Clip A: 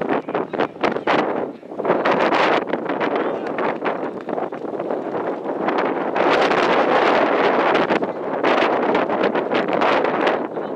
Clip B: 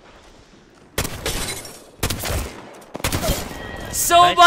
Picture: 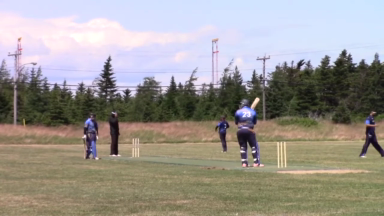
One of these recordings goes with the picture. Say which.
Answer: A